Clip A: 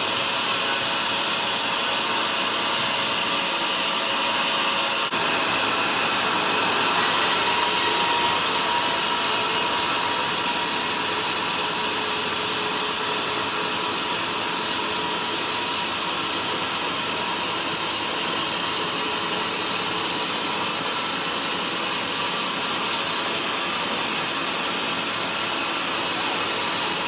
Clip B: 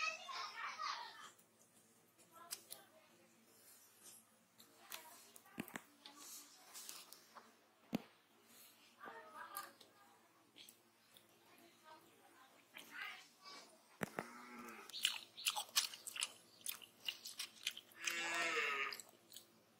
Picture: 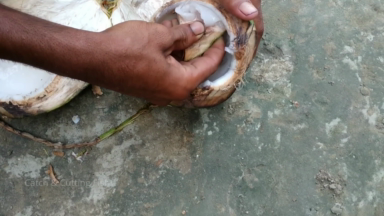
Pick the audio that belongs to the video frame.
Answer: B